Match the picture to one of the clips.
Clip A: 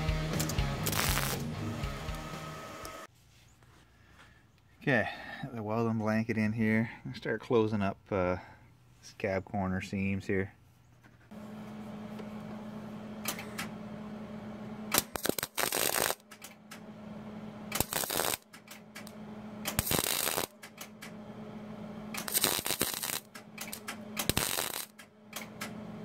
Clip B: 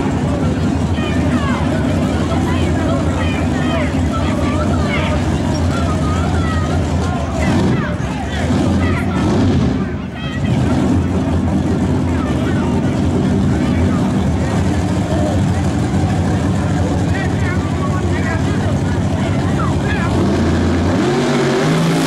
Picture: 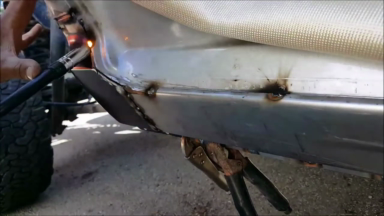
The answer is A